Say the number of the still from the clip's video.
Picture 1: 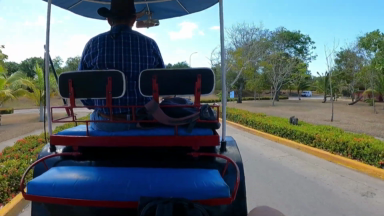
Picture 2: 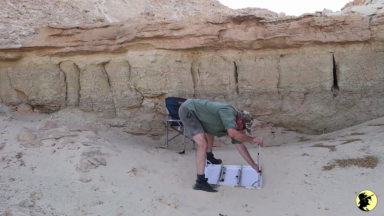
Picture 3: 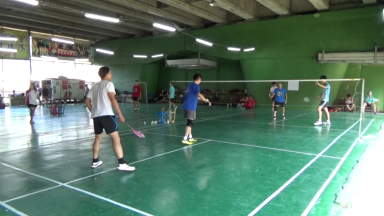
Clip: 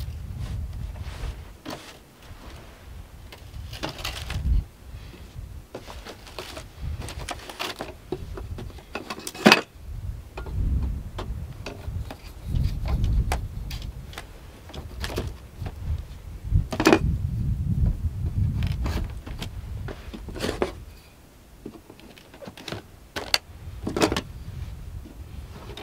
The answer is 2